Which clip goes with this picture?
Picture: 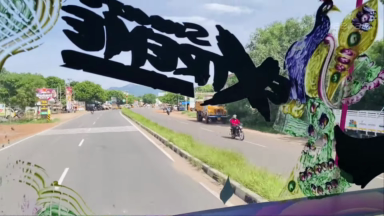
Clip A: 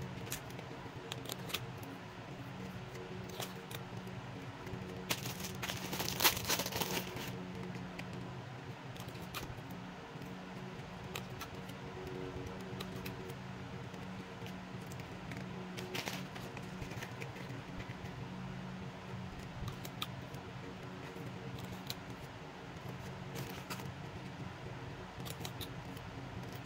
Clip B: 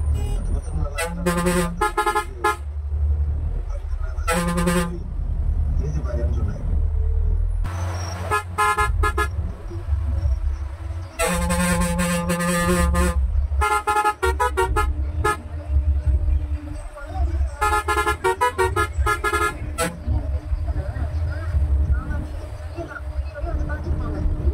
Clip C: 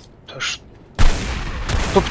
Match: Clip B